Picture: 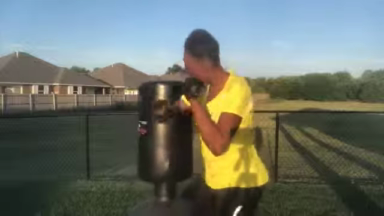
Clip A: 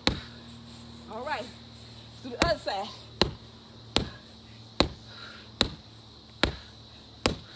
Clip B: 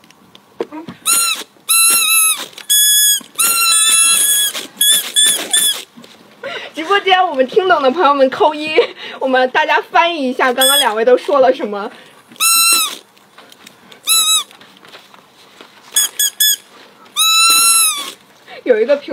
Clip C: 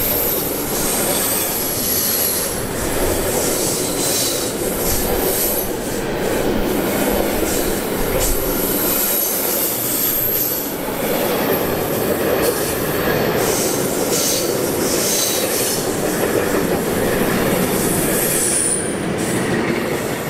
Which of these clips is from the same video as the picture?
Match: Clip A